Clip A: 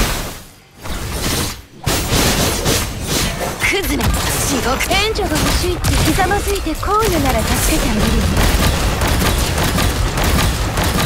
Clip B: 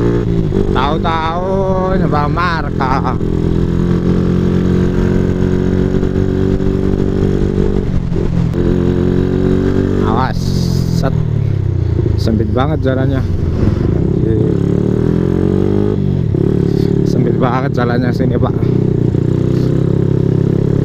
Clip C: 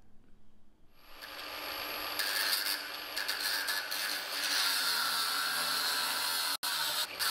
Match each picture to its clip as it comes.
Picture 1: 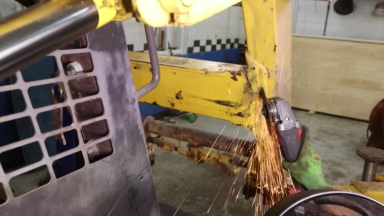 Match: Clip C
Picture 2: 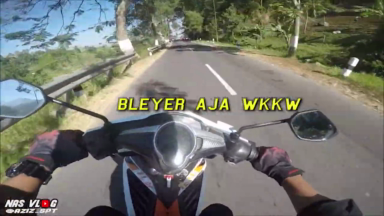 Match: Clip B